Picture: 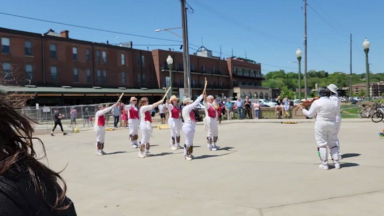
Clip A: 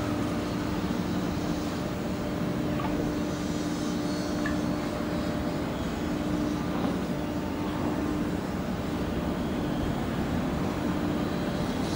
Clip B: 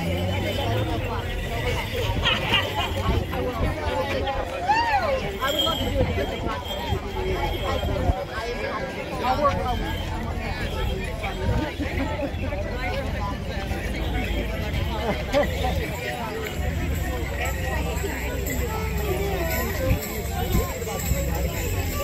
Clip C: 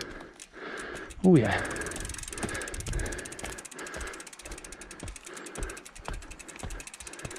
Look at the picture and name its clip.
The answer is B